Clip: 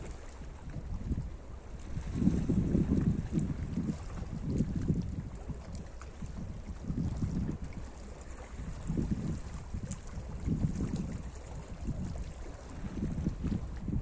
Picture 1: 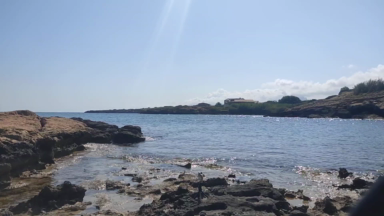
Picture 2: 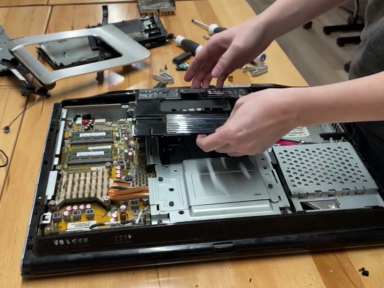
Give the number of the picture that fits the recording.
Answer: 1